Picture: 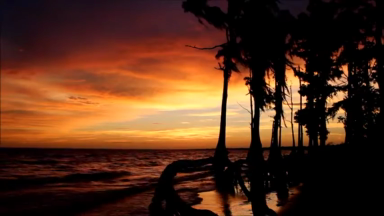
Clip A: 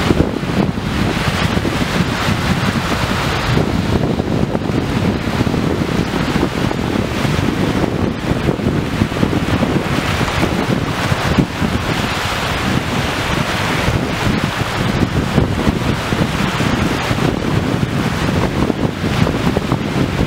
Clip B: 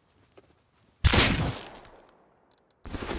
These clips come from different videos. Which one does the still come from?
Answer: A